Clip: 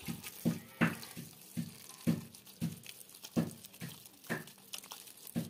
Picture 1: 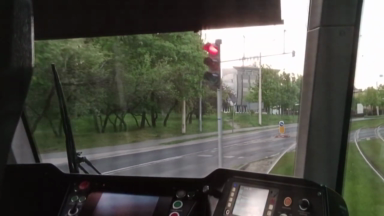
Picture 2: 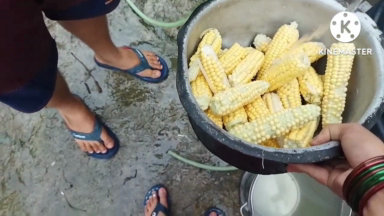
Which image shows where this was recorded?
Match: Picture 2